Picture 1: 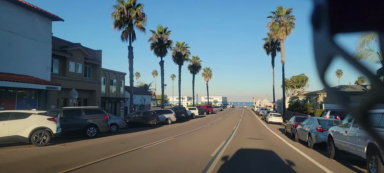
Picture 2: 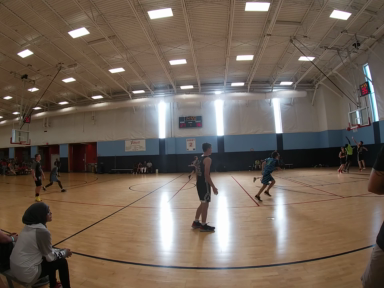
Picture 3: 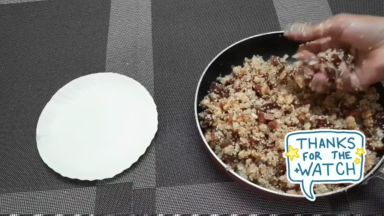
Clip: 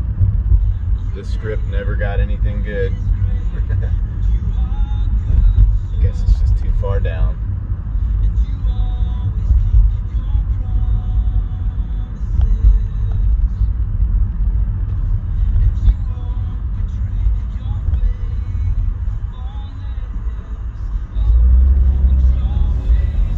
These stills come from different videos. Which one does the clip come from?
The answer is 1